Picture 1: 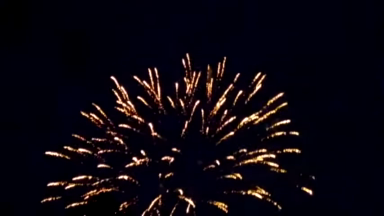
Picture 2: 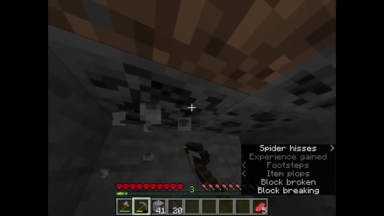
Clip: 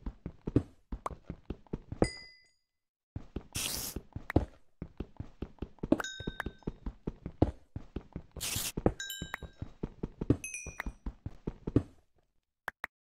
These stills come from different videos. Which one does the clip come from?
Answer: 2